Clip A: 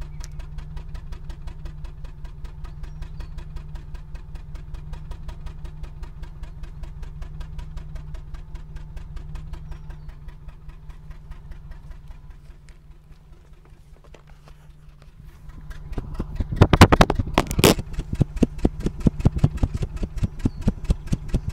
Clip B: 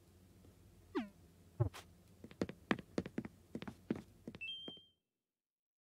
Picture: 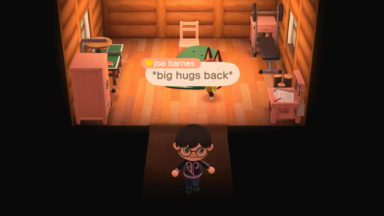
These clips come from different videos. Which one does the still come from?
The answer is B